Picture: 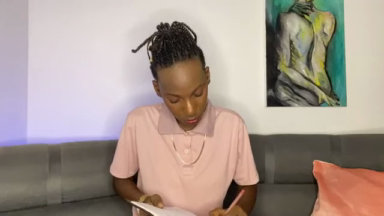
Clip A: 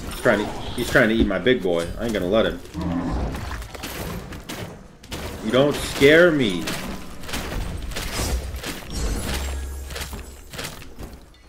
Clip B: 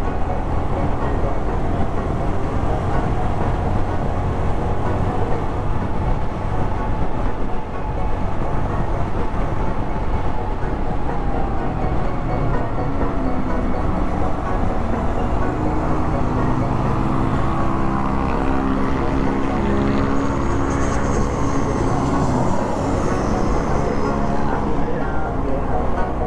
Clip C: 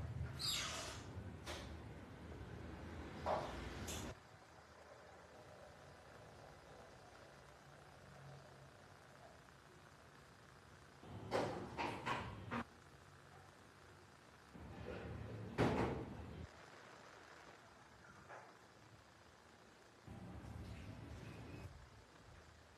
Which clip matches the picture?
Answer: C